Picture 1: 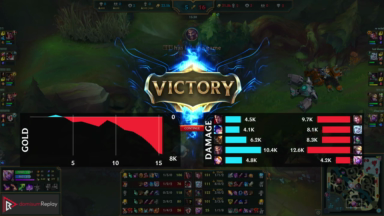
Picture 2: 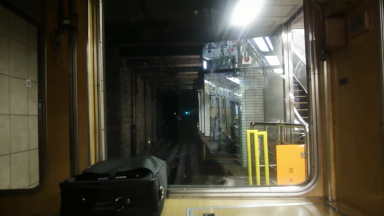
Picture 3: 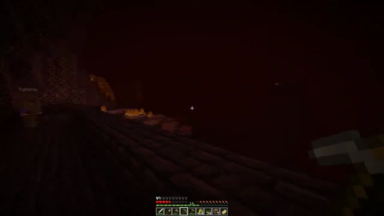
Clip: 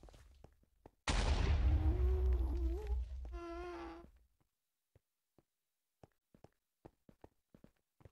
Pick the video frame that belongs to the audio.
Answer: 3